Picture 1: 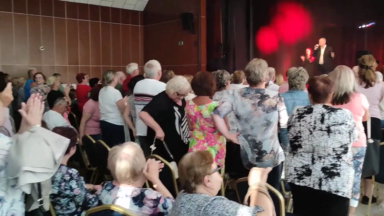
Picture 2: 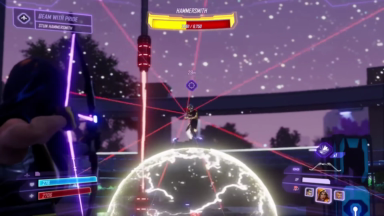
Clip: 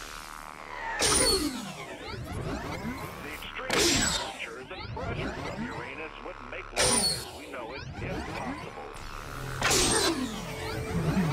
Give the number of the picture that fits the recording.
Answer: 2